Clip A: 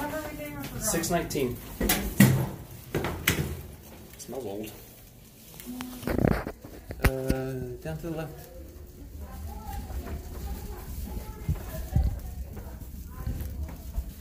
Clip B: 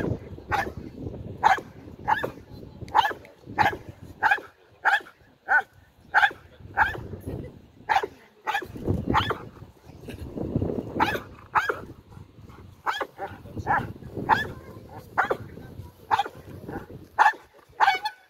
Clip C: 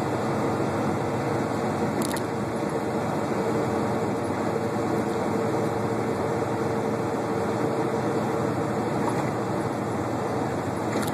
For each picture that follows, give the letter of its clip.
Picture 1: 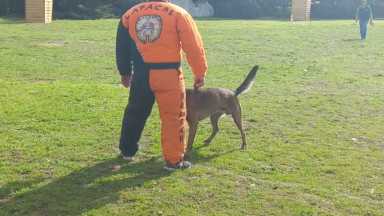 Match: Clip B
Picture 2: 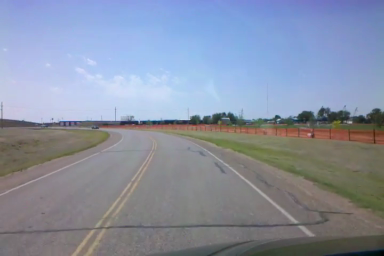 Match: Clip C